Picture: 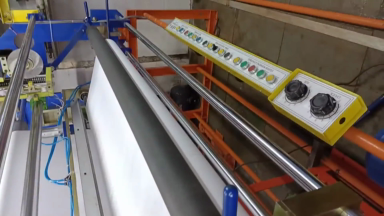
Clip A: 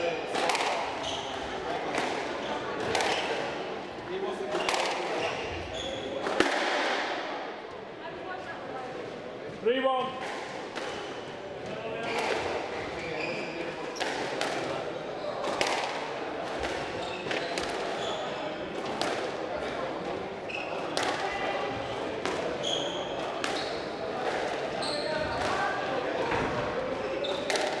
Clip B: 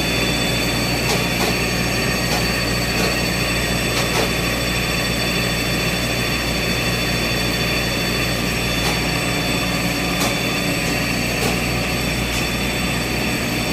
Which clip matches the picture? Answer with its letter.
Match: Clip B